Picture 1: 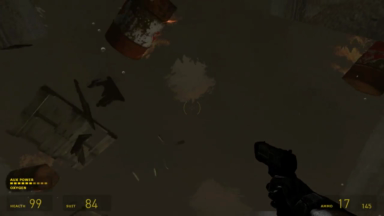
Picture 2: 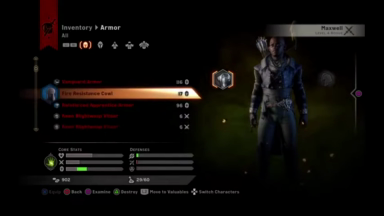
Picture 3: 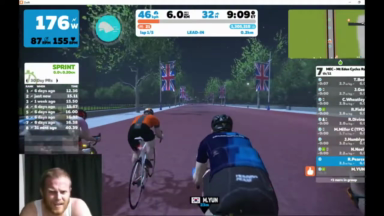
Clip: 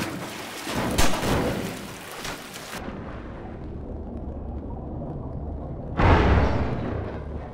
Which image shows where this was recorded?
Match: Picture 1